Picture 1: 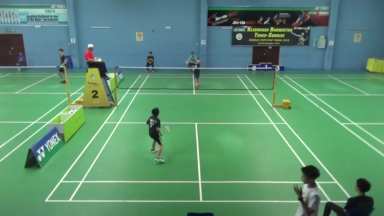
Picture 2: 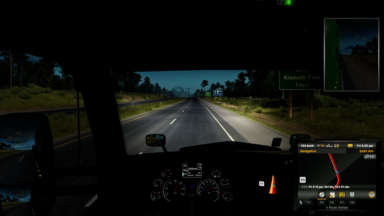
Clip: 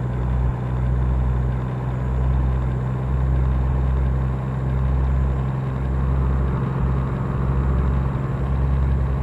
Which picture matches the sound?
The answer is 2